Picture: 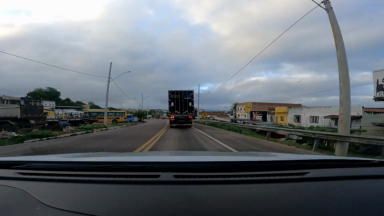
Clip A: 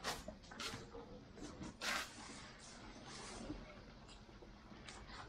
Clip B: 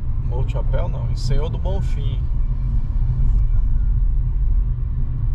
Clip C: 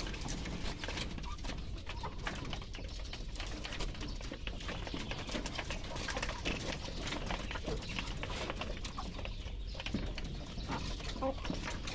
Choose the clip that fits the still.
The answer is B